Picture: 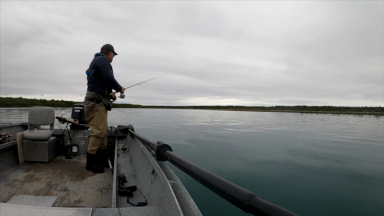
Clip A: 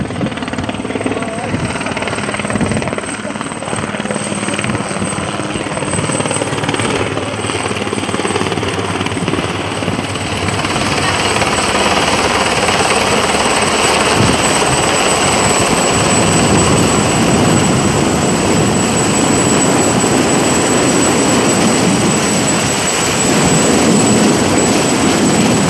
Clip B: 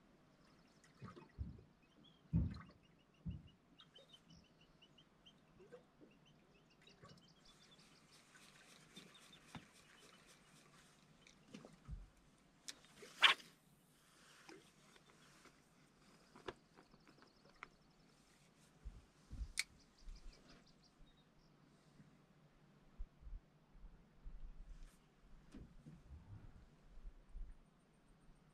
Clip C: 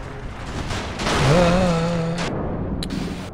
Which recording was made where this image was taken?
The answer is B